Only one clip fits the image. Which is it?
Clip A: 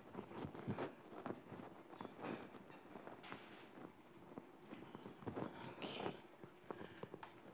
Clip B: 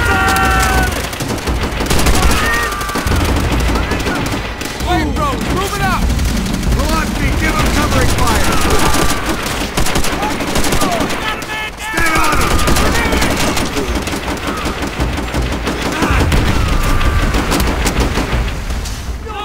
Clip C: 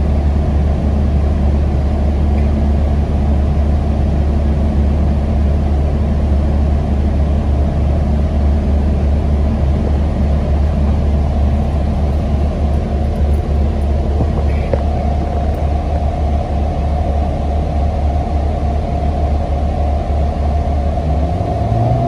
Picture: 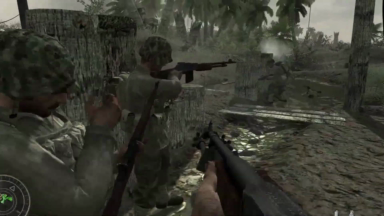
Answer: B